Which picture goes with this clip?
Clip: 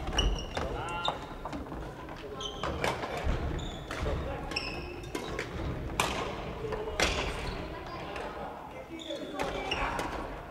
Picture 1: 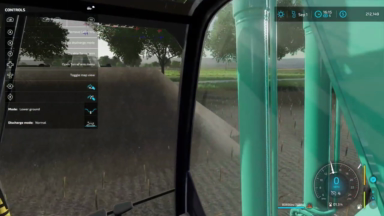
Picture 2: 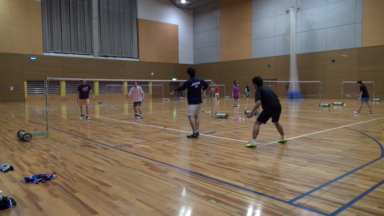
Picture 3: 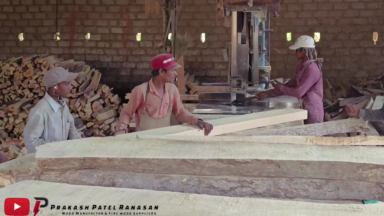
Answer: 2